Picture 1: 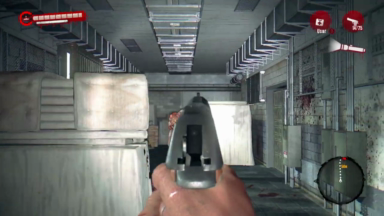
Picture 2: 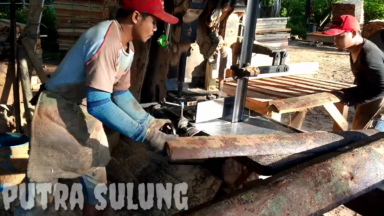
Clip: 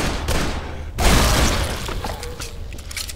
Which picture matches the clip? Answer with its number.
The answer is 1